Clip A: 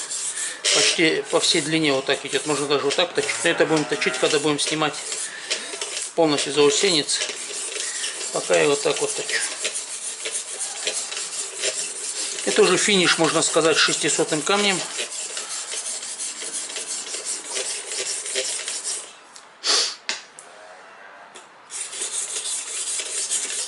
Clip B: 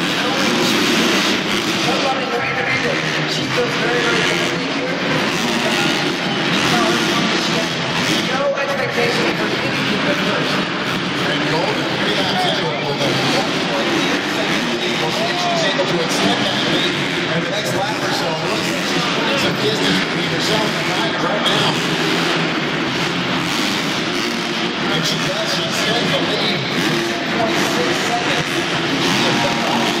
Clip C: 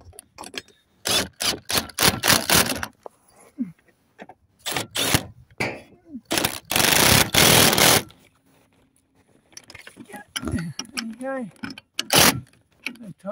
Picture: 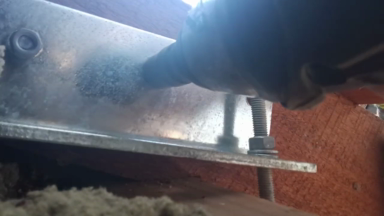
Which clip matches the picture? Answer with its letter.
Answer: C